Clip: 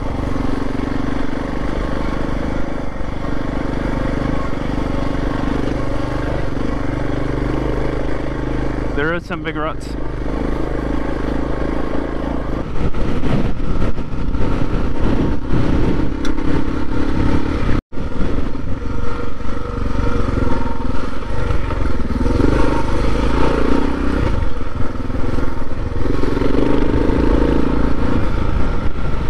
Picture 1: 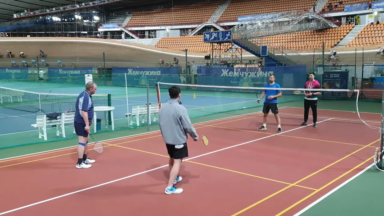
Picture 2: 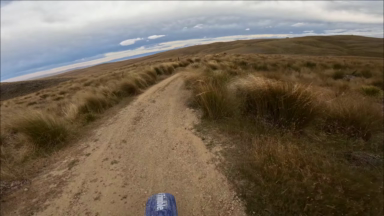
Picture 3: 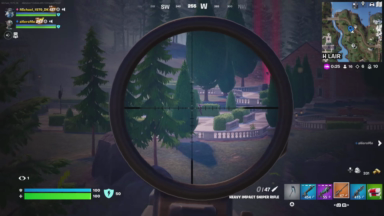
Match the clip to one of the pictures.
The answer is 2